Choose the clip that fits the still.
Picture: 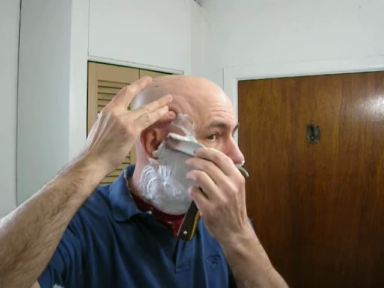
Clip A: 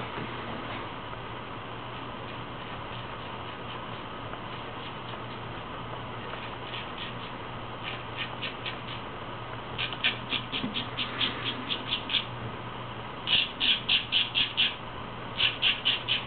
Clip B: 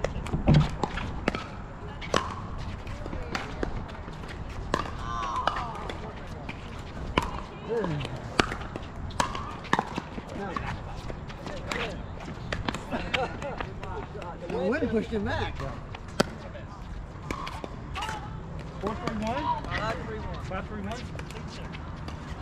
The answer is A